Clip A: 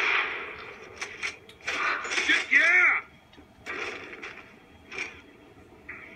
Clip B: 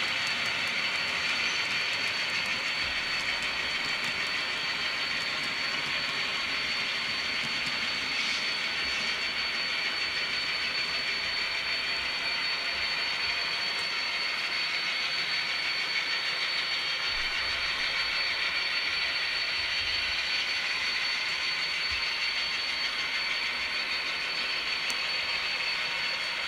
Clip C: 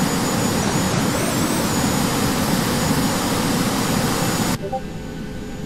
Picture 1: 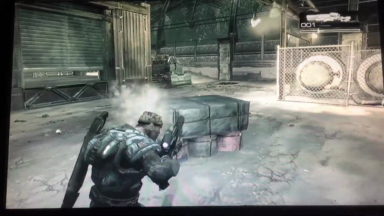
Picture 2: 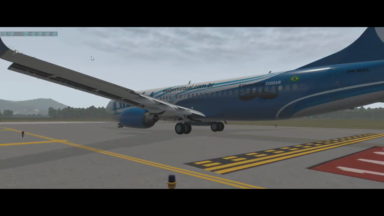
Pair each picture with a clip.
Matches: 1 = A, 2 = C